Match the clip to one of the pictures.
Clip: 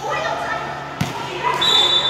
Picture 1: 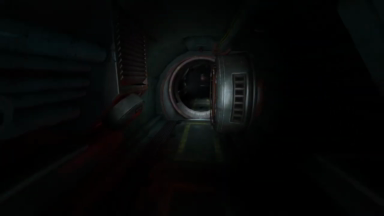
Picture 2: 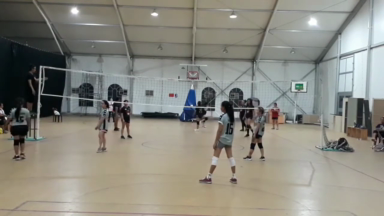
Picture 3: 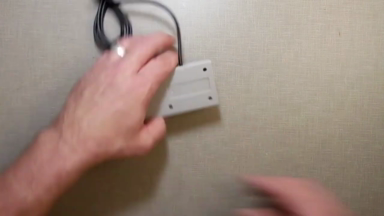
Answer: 2